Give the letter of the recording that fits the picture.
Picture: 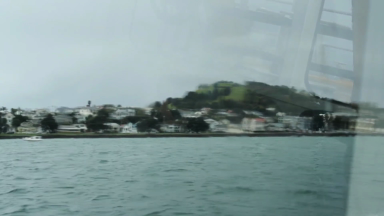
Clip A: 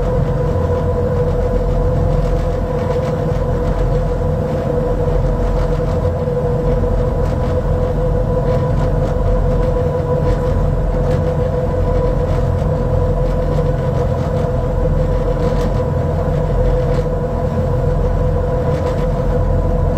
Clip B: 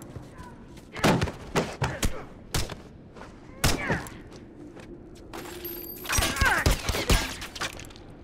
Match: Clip A